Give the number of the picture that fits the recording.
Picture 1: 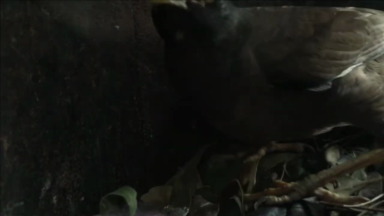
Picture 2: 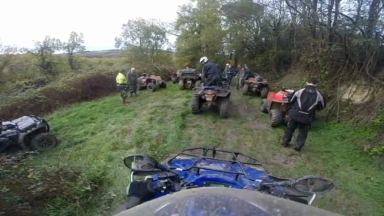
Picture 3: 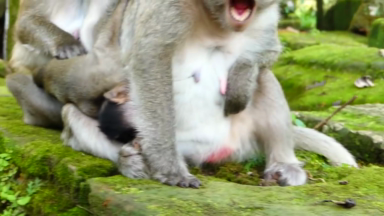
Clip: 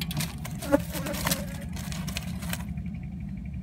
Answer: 1